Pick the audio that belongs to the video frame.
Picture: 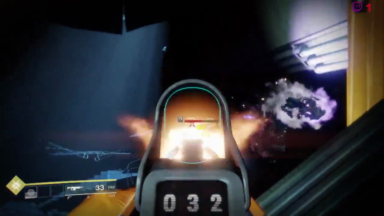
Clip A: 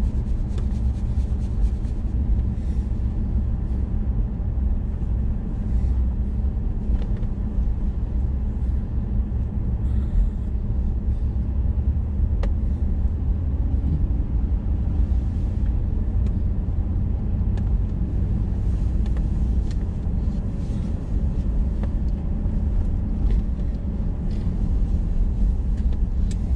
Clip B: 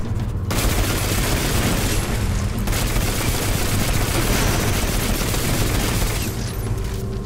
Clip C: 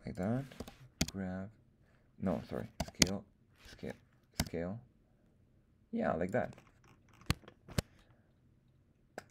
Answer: B